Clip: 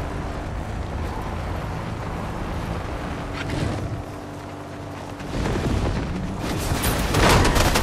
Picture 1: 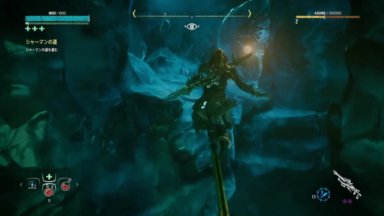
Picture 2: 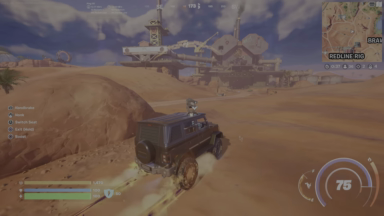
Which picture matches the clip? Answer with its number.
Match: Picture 2